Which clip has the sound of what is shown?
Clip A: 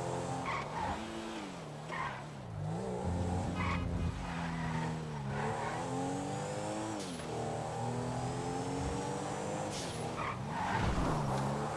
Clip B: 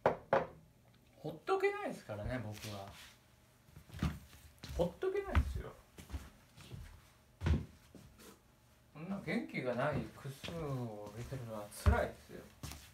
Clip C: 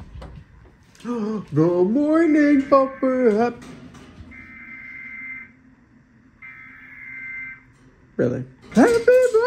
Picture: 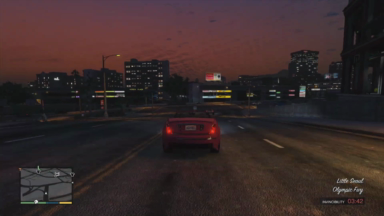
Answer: A